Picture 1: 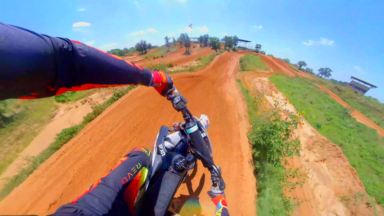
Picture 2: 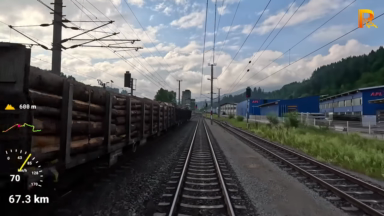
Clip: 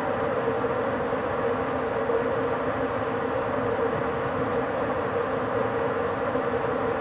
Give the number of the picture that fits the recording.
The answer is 2